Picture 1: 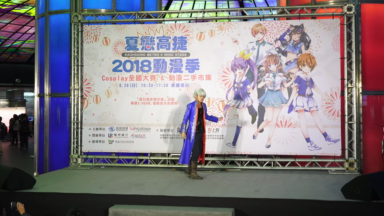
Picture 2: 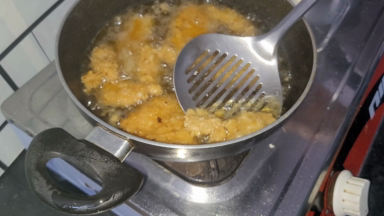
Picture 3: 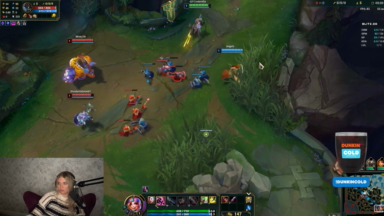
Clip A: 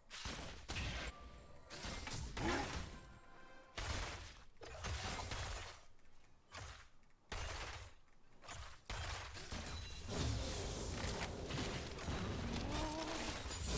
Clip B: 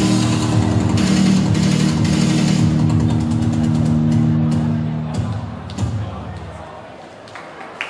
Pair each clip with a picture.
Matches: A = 3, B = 1